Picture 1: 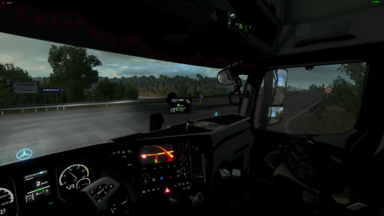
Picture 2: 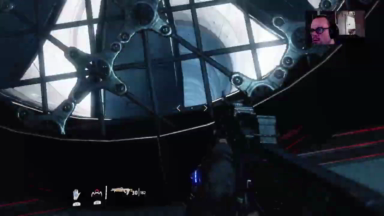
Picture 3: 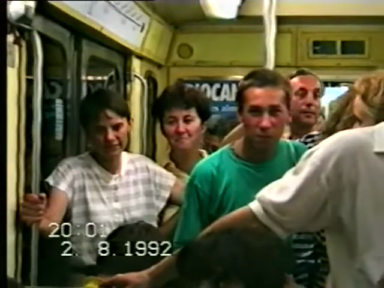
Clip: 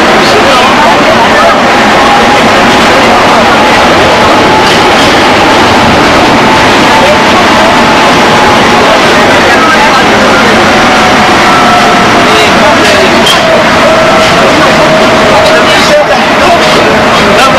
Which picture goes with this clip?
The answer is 3